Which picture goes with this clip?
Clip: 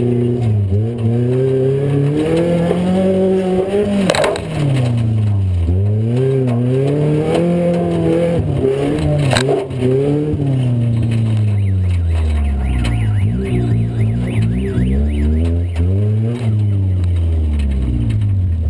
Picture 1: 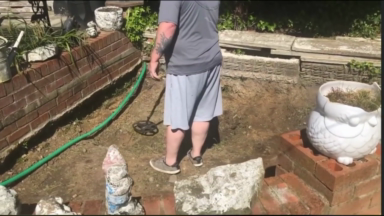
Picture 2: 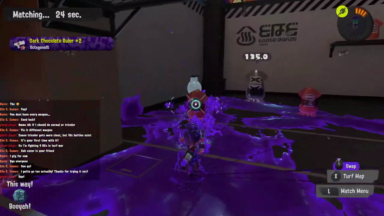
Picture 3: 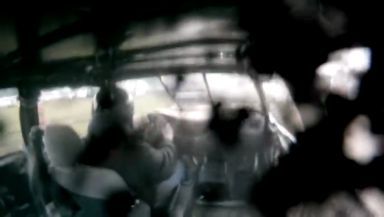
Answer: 3